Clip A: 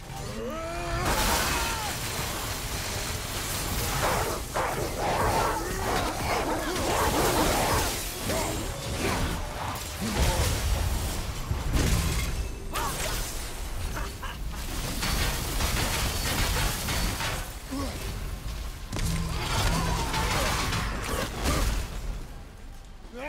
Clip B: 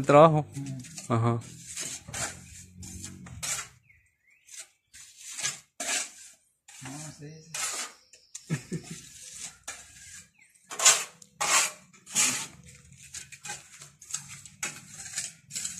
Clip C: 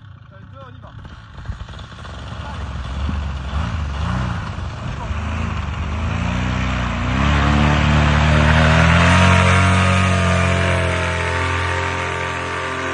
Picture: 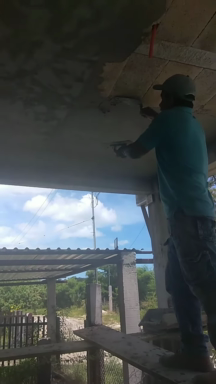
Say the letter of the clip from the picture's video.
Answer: B